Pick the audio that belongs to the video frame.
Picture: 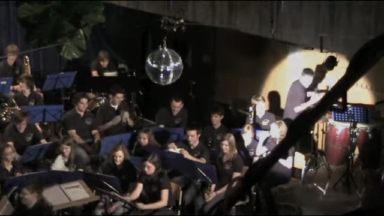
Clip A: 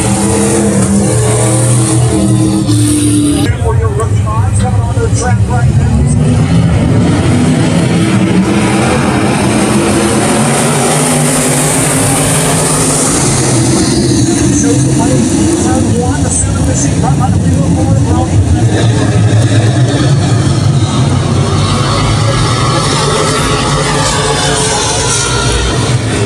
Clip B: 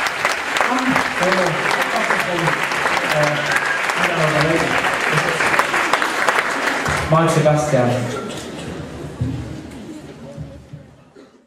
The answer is B